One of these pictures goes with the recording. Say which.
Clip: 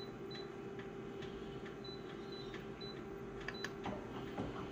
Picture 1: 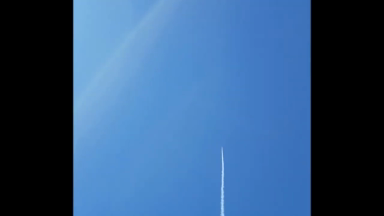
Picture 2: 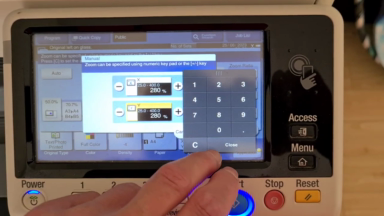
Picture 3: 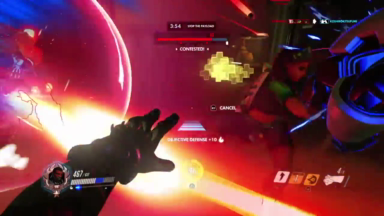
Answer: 2